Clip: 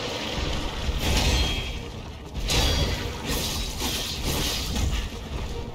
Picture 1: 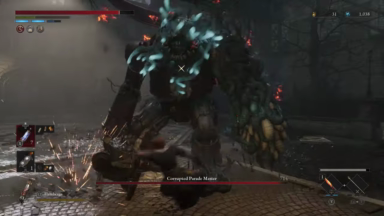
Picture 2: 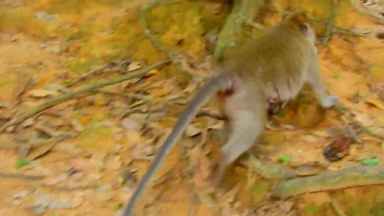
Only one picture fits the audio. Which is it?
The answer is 1